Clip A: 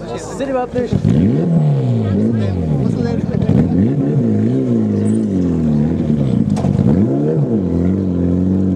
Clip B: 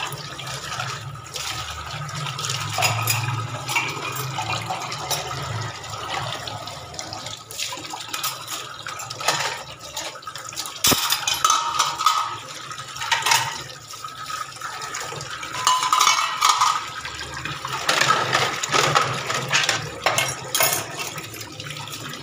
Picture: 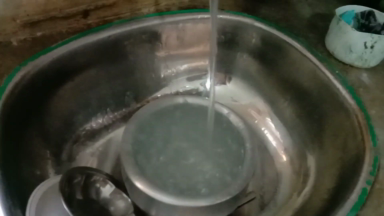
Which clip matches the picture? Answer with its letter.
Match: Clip B